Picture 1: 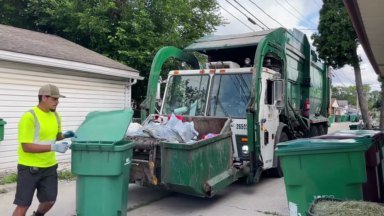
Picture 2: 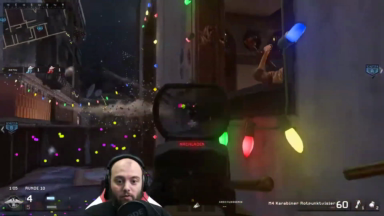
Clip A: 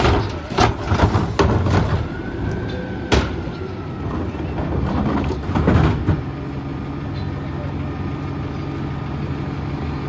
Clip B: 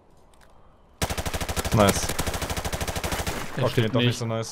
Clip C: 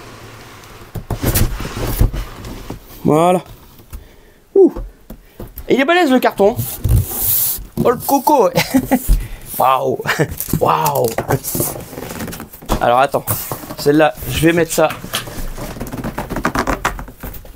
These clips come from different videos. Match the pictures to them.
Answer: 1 A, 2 B